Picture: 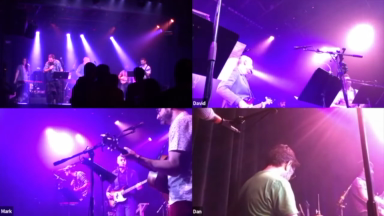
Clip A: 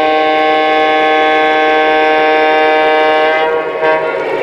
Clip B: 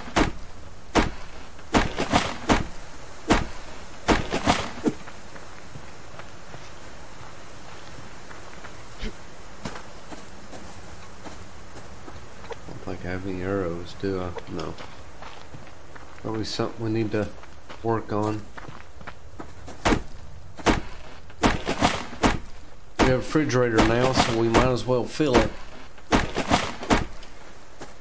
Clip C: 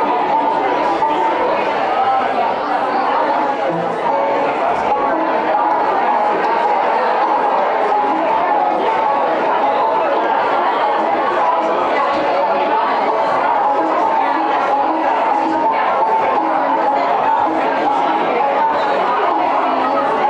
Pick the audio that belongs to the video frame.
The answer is C